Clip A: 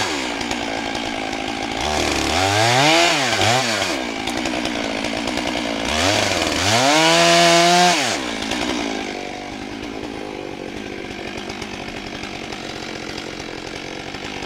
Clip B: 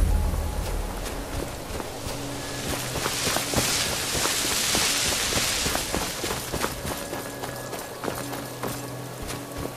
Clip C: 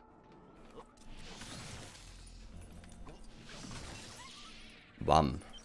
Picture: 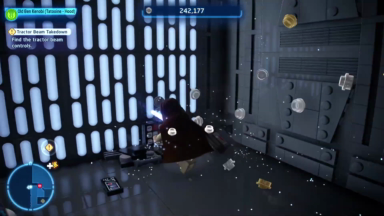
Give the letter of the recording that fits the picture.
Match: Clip C